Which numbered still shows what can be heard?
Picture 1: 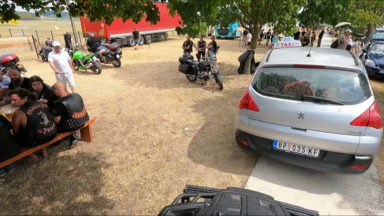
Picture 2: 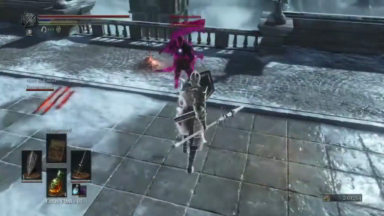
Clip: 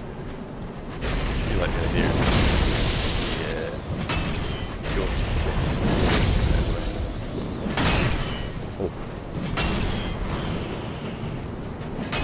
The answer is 2